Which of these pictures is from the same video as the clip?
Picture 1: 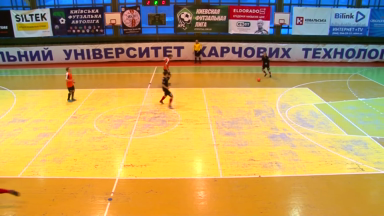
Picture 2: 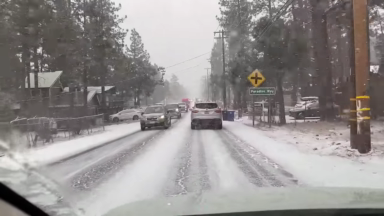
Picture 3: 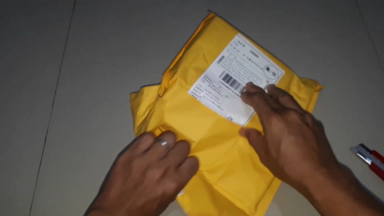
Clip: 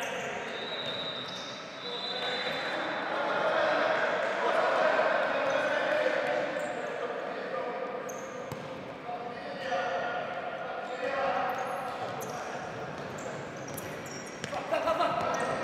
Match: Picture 1